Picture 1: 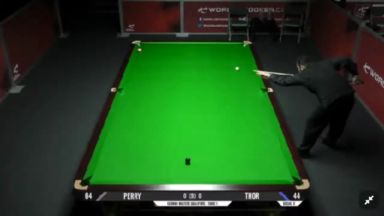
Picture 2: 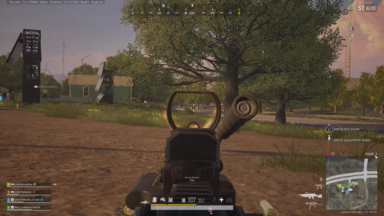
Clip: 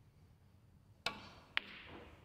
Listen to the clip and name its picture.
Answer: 1